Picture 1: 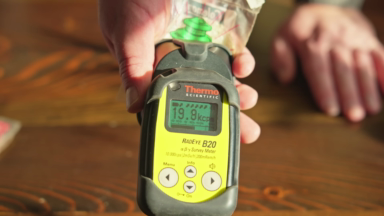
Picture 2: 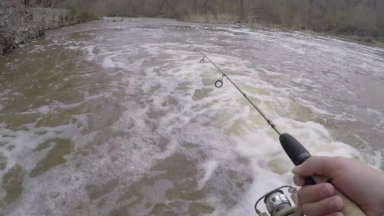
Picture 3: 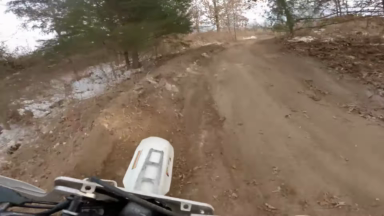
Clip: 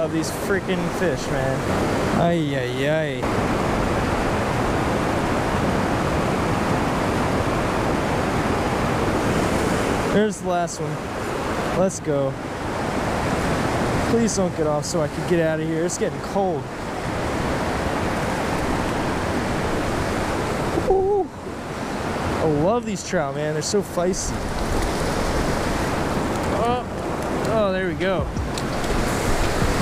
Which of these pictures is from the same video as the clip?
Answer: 2